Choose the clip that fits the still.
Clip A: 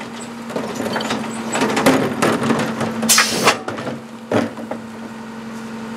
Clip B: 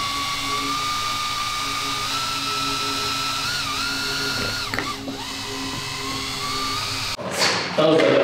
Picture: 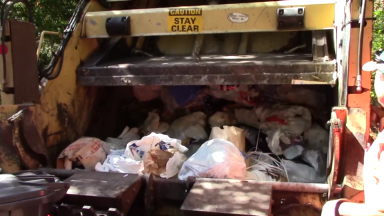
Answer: A